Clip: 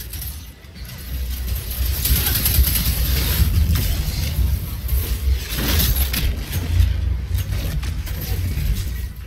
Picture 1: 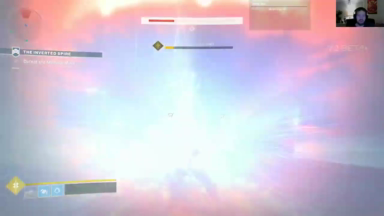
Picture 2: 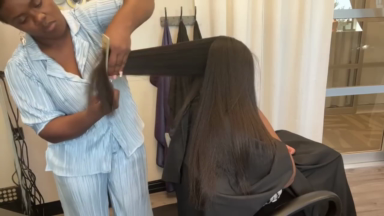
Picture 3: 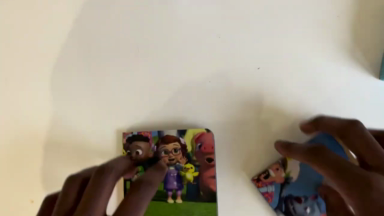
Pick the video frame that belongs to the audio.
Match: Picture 1